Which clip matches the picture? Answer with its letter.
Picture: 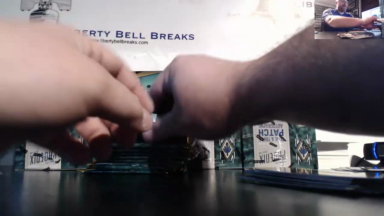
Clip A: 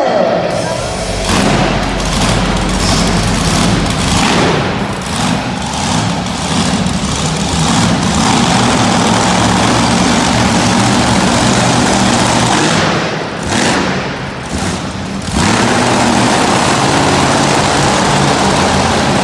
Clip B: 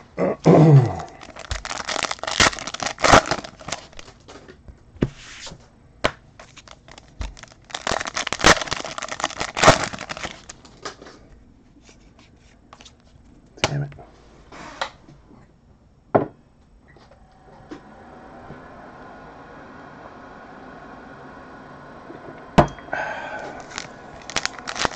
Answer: B